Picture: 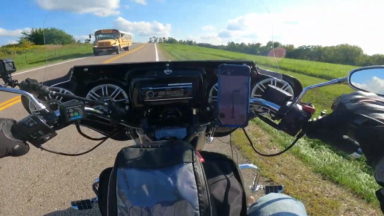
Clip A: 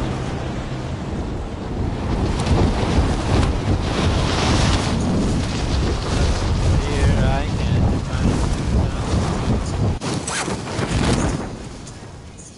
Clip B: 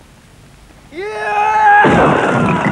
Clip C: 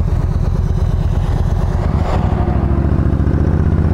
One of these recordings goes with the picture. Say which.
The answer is C